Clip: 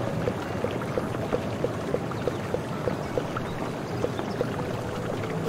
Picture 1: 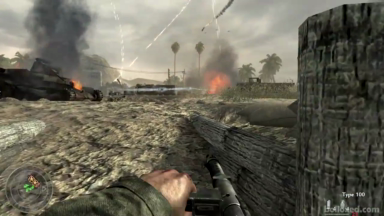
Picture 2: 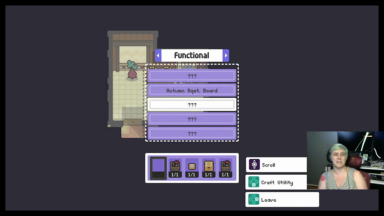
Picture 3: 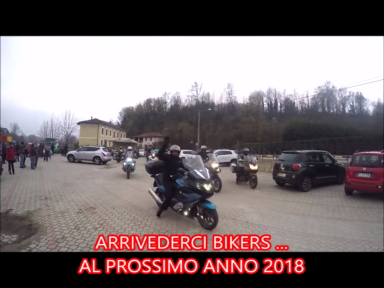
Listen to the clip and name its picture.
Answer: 2